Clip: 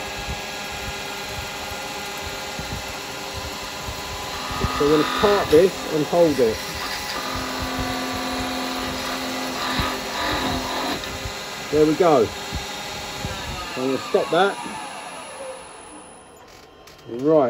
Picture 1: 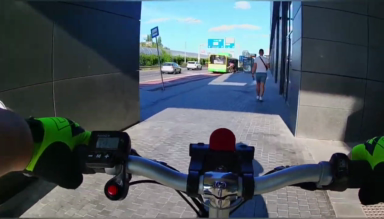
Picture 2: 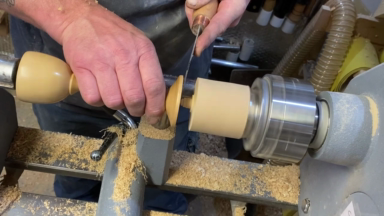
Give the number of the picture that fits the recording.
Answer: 2